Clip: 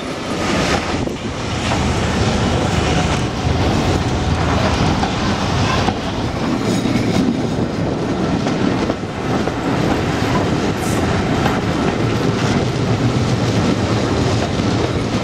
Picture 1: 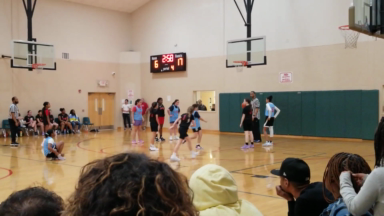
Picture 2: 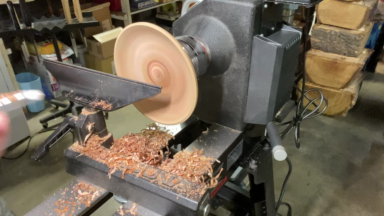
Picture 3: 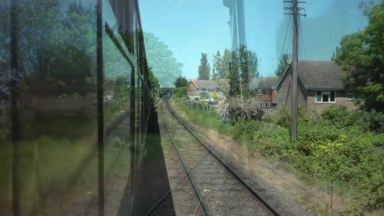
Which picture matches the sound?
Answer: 3